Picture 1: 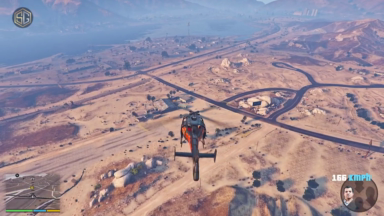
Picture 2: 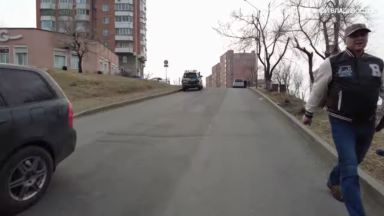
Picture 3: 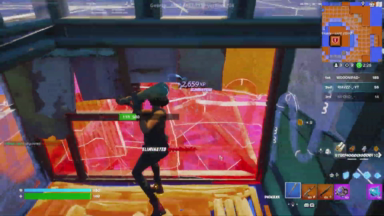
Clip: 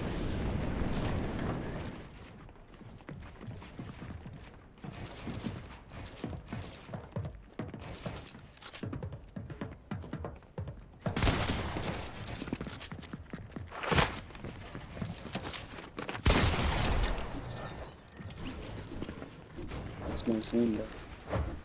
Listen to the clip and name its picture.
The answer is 3